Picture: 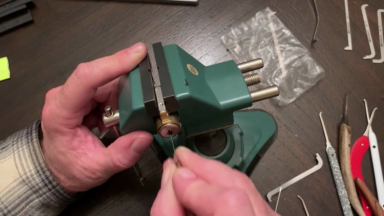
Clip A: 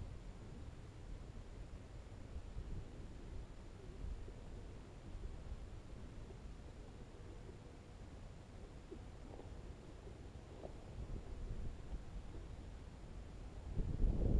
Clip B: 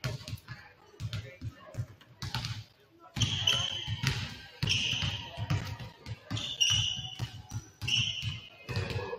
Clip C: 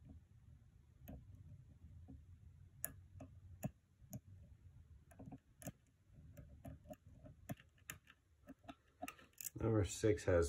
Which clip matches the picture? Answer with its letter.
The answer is C